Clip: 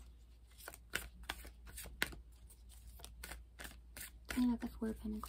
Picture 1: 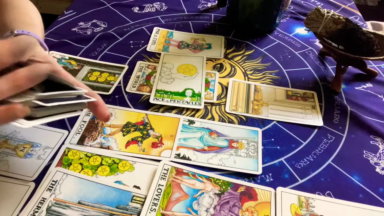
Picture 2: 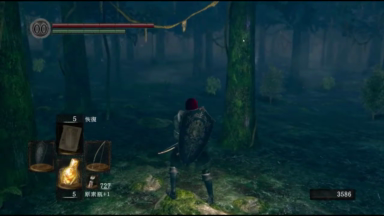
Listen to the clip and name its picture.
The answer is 1